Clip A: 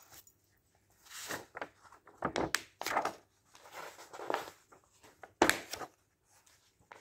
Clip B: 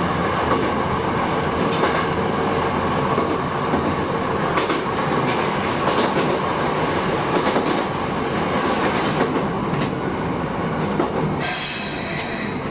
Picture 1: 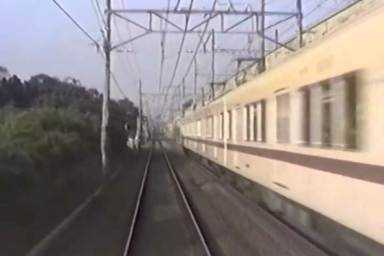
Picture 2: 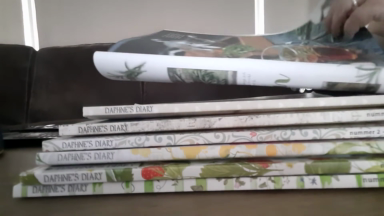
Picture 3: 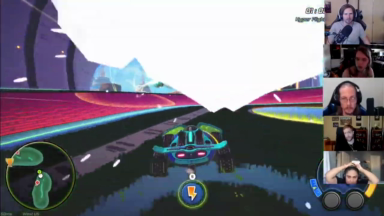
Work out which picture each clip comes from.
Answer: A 2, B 1